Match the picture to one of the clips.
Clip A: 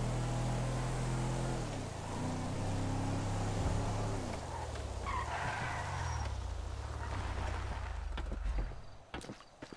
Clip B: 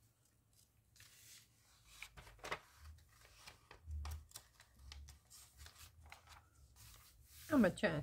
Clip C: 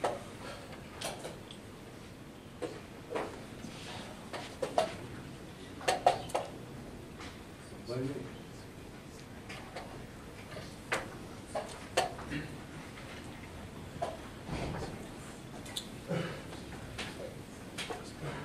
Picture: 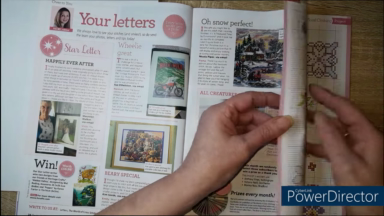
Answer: B